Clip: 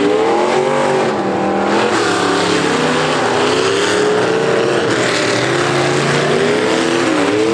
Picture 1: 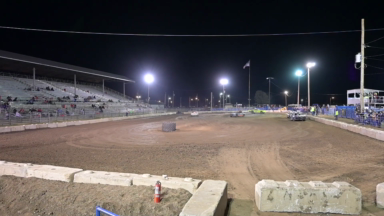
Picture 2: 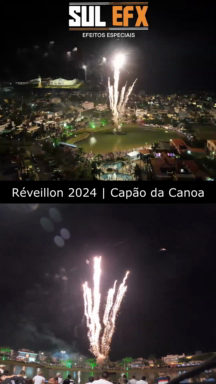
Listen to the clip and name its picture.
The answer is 1